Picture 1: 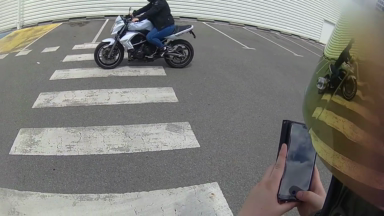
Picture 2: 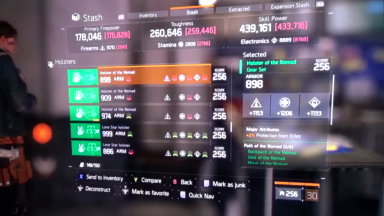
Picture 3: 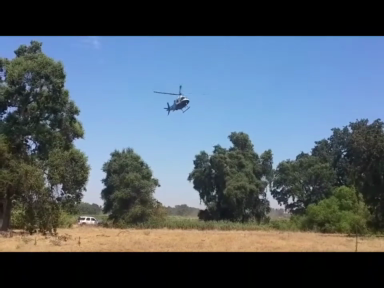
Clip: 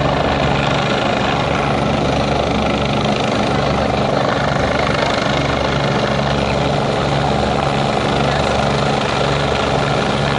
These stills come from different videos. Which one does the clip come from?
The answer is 3